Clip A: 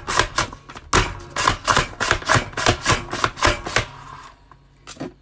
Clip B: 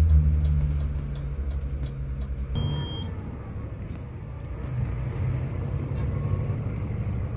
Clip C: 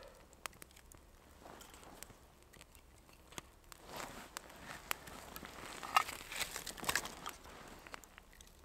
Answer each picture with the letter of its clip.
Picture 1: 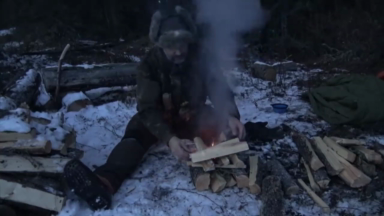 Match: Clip C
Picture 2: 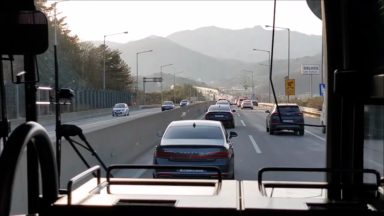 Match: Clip B